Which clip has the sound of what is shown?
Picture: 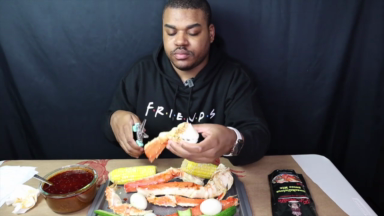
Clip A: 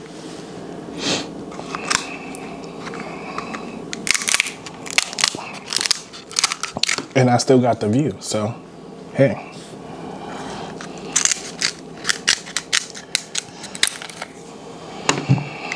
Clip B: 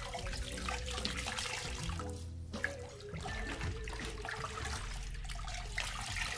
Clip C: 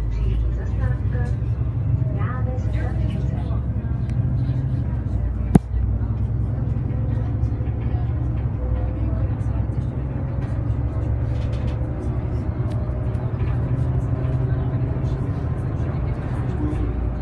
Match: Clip A